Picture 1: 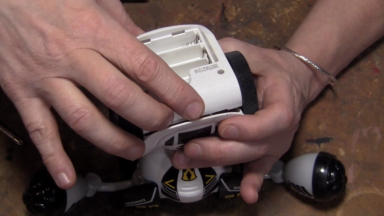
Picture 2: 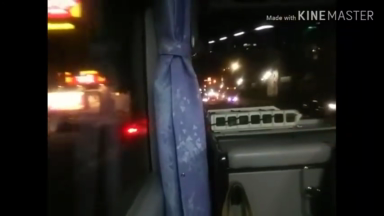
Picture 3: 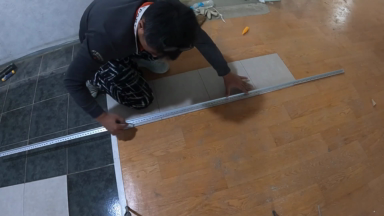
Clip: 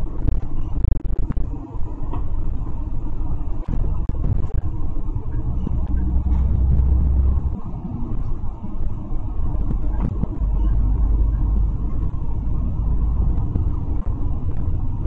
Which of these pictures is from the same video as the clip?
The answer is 2